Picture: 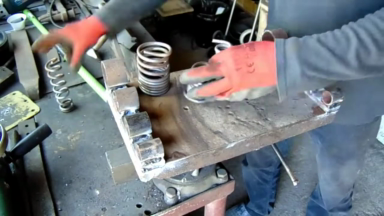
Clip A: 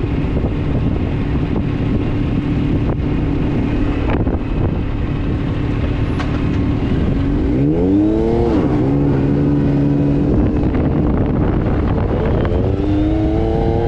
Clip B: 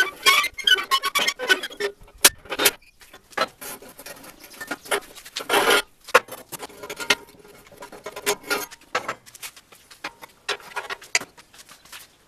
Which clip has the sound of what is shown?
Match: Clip B